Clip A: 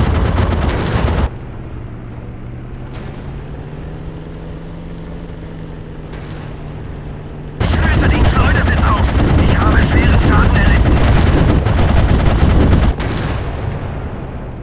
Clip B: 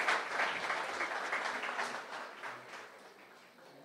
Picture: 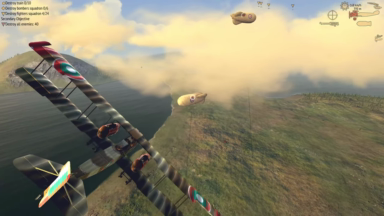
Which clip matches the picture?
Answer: A